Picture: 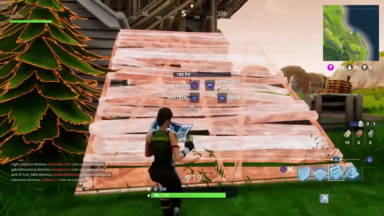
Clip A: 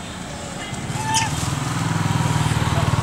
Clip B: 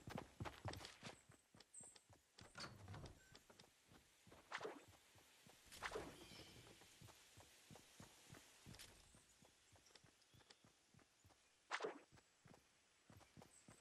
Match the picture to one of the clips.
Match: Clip B